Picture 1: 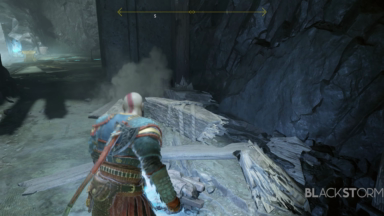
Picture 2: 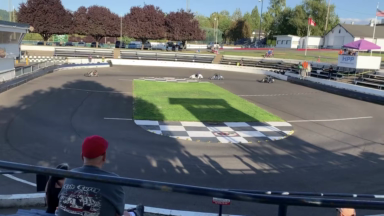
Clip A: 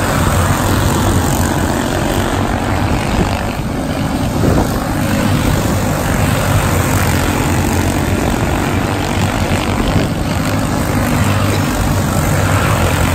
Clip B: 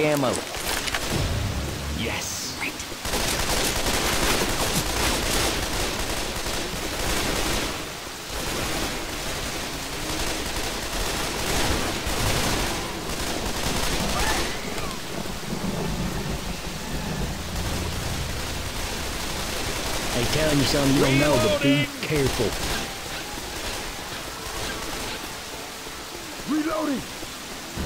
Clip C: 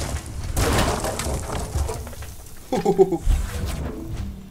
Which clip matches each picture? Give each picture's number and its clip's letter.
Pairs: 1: C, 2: A